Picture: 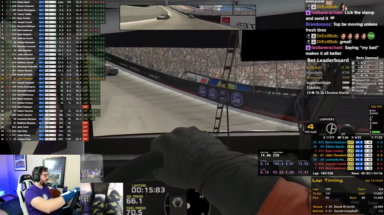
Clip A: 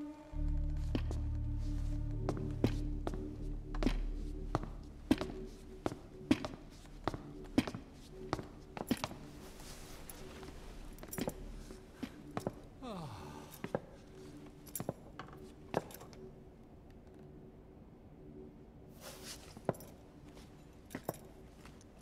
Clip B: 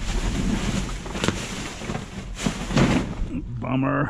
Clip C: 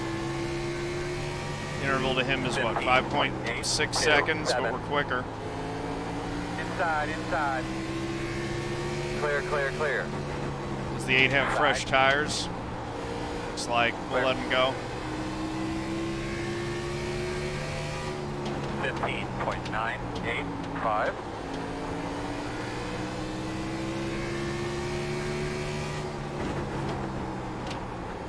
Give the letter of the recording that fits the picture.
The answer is C